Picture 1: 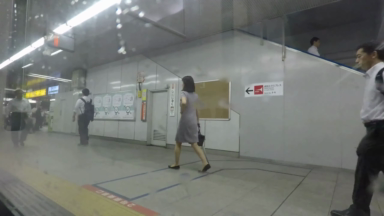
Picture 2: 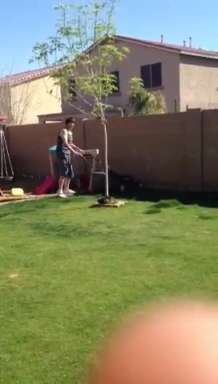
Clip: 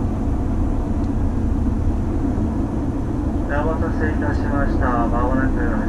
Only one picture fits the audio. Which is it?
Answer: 1